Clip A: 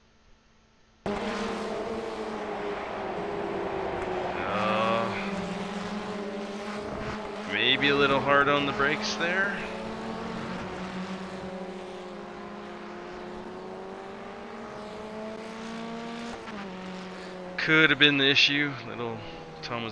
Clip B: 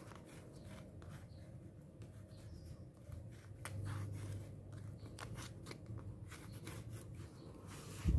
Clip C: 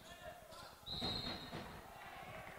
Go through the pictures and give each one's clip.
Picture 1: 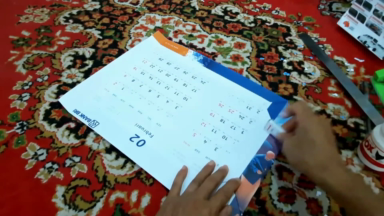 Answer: B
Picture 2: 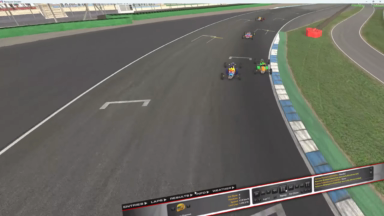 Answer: A